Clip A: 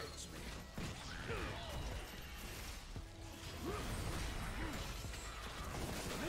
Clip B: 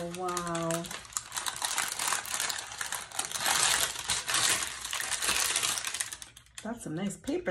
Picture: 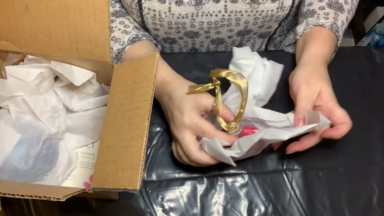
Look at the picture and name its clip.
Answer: B